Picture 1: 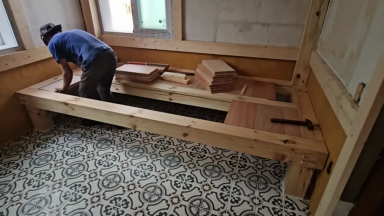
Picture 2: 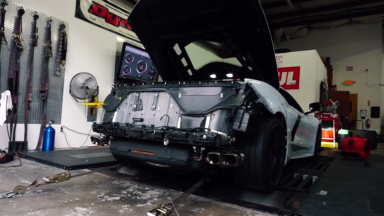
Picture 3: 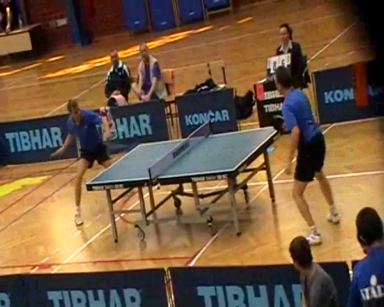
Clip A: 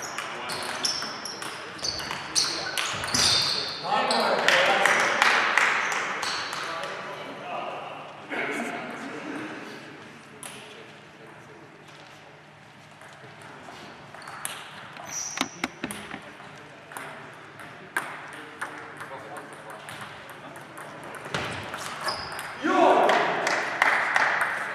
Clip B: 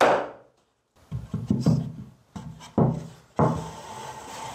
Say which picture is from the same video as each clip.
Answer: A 3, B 1